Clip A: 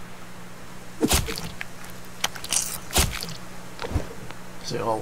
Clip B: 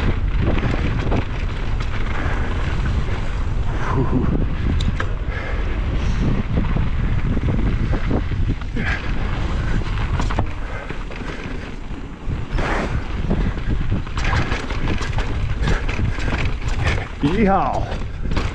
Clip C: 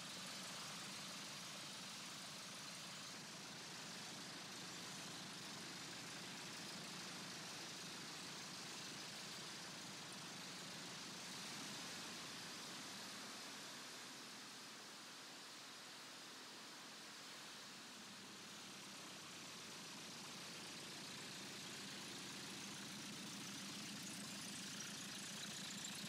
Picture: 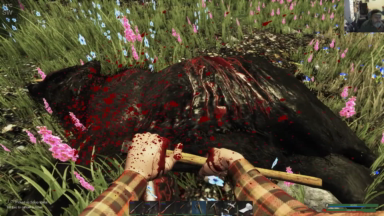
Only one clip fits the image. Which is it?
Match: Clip A